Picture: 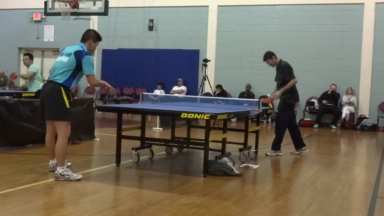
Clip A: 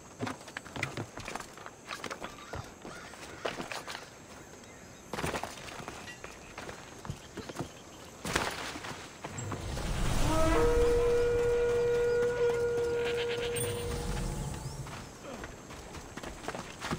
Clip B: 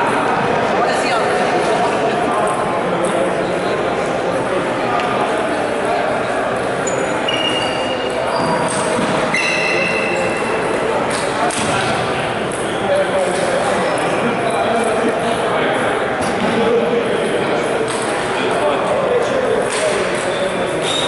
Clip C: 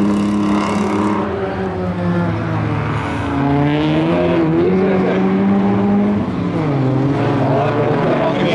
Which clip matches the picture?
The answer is B